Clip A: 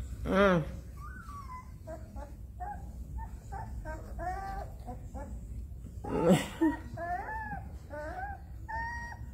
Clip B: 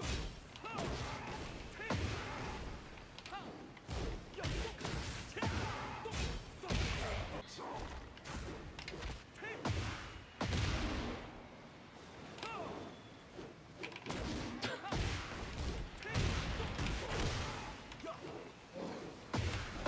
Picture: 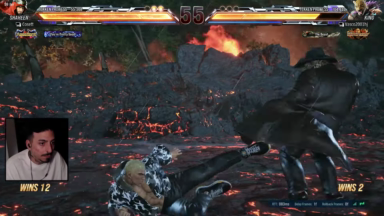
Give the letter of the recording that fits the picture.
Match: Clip B